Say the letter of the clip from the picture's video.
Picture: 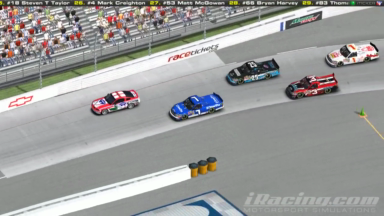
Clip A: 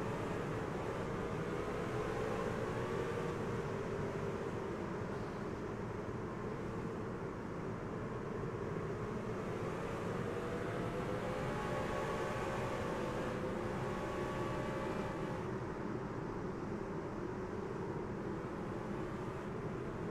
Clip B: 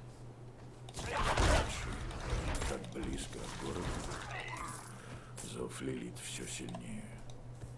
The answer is A